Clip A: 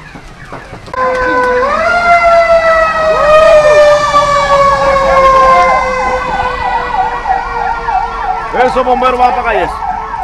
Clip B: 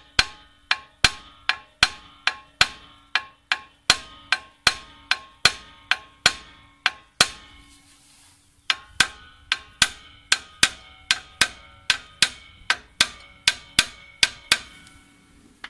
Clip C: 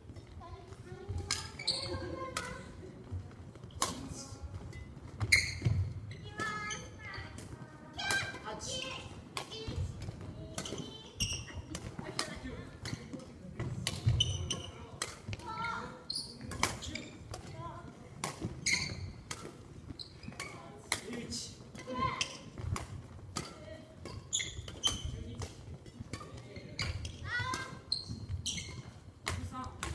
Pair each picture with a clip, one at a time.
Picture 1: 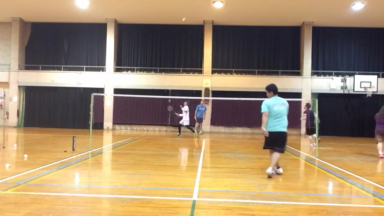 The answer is C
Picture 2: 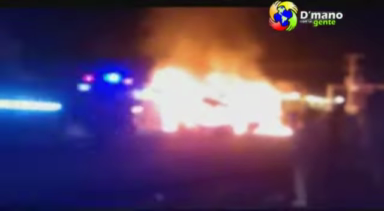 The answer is A